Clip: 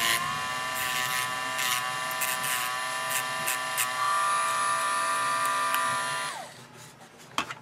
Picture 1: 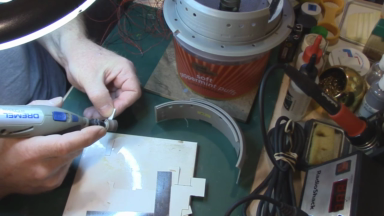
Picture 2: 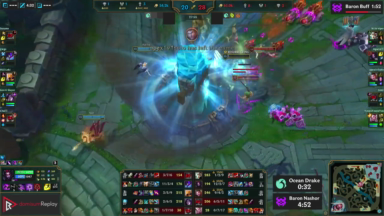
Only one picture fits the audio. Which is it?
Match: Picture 1